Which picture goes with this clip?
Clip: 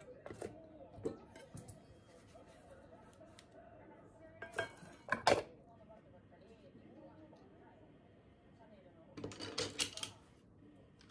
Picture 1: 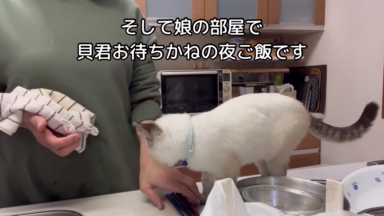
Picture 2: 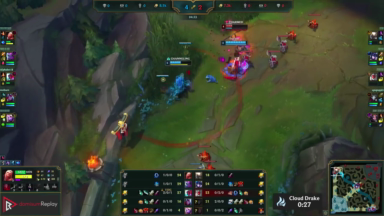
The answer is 1